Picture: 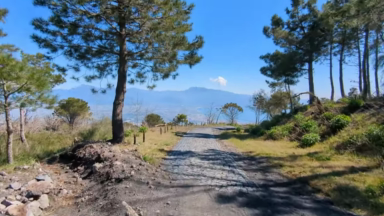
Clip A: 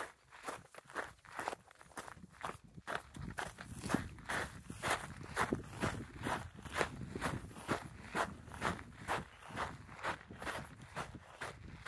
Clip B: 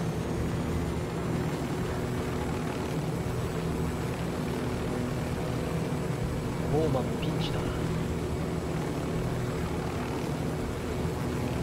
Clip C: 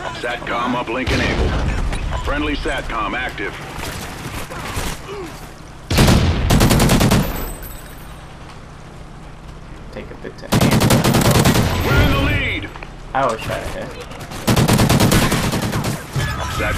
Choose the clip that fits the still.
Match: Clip A